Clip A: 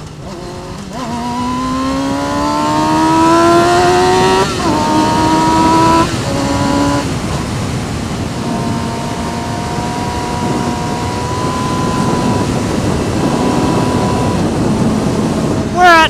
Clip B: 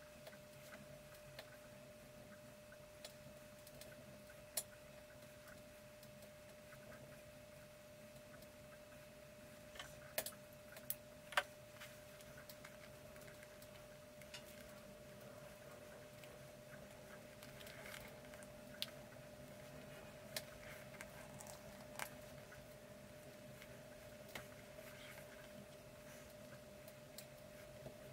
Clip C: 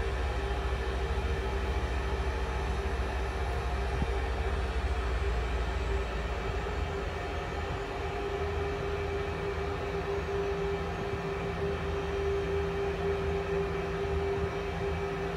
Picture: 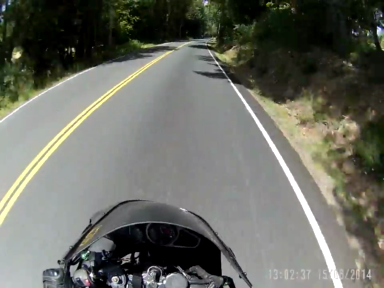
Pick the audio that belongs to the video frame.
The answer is A